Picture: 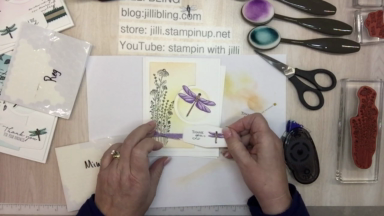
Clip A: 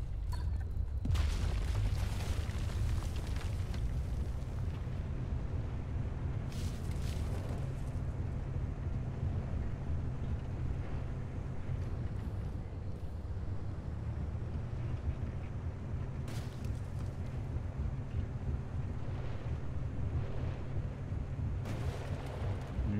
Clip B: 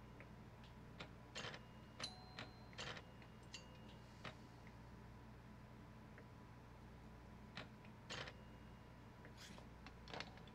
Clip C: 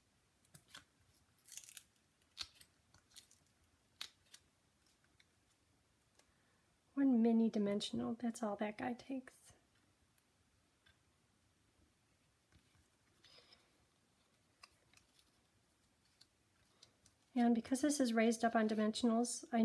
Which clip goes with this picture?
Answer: C